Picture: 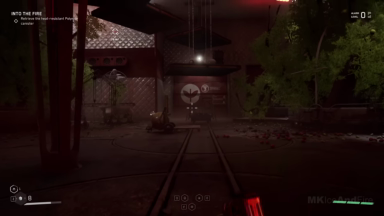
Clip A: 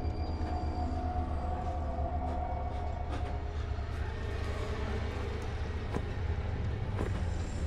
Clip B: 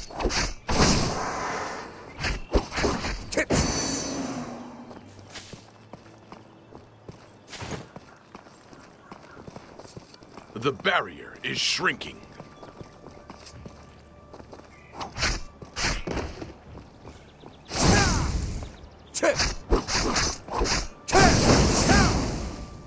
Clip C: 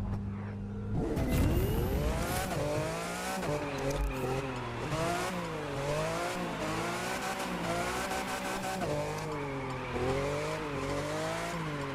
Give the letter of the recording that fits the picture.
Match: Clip A